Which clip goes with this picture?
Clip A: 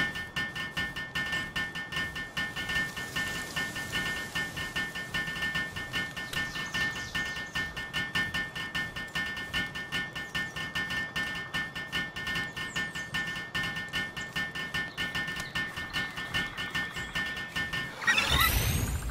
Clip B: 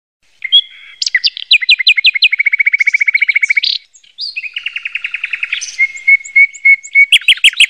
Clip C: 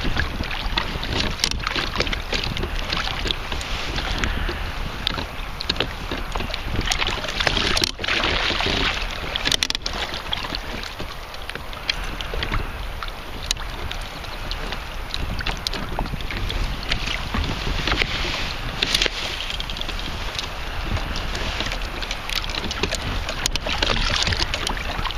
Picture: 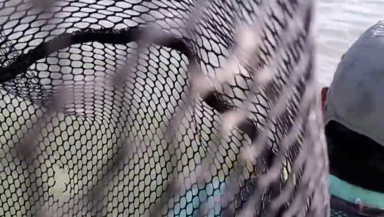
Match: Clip C